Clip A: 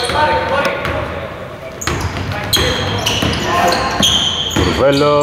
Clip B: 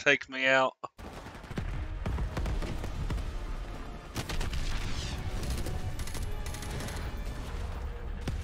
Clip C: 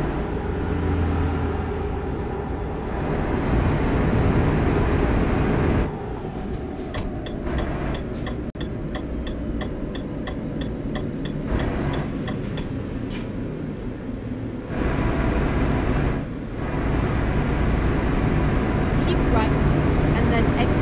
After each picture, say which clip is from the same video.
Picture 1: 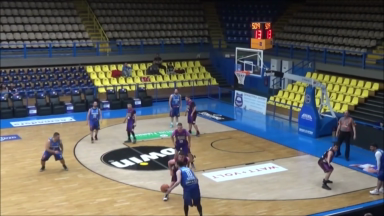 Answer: A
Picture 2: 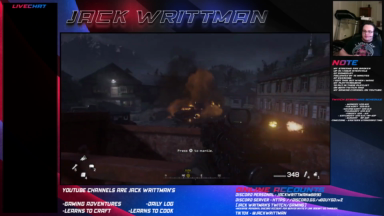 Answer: B